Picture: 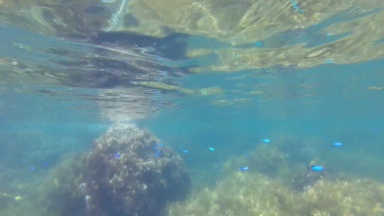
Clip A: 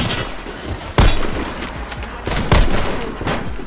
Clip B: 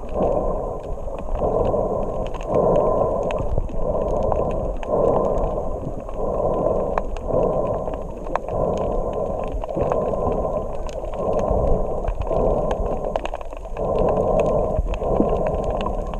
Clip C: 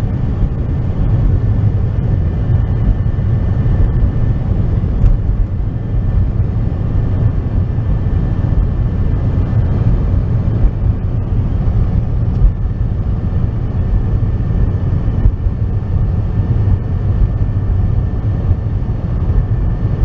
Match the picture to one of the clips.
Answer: B